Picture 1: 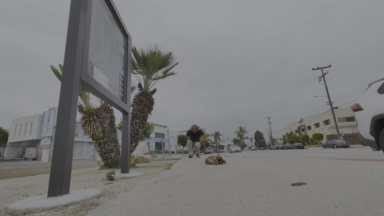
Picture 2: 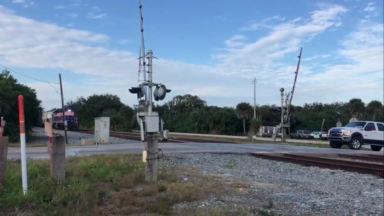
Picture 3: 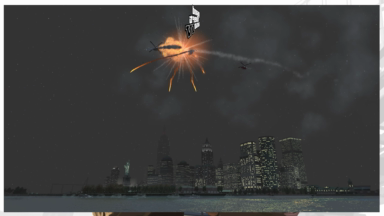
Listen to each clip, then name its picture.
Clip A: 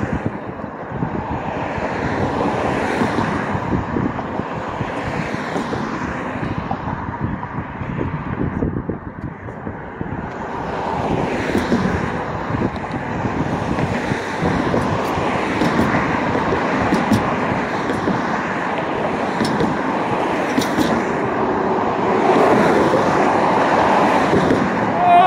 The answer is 1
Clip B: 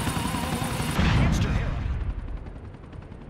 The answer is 3